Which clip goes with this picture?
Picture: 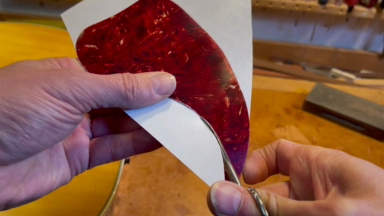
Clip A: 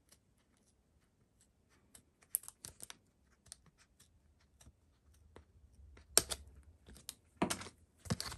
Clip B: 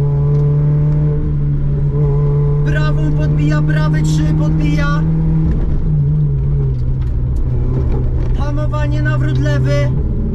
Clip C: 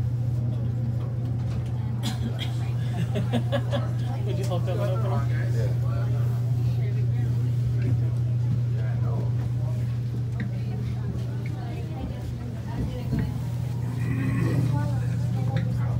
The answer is A